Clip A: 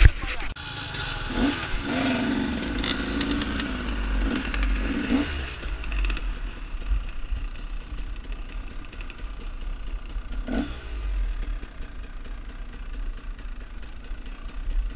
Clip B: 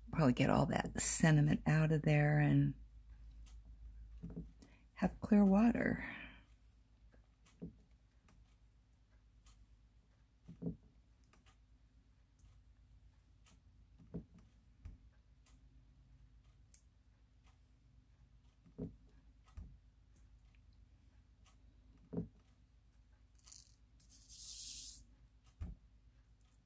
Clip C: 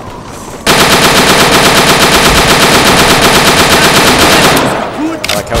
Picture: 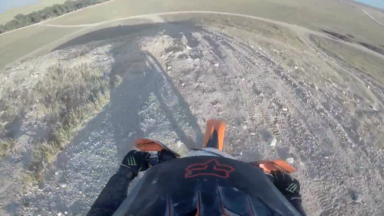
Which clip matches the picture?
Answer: A